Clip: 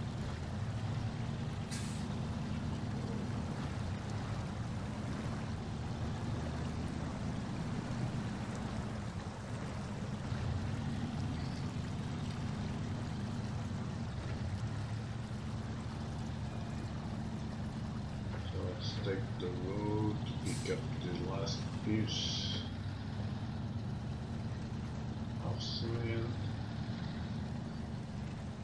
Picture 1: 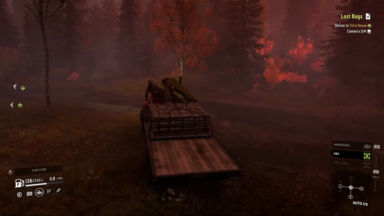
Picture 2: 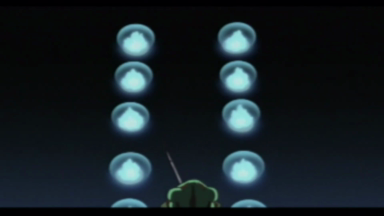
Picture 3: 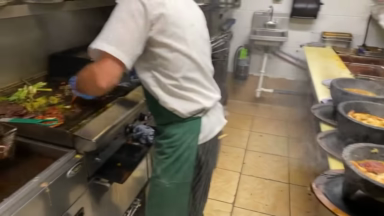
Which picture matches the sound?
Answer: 1